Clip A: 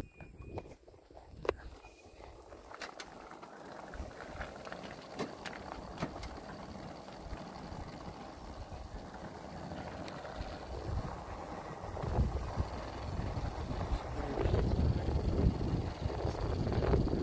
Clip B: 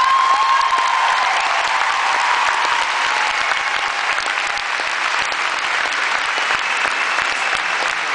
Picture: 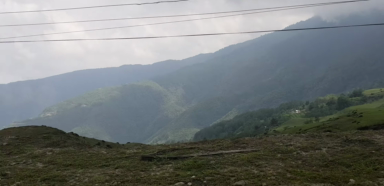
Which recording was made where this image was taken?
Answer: A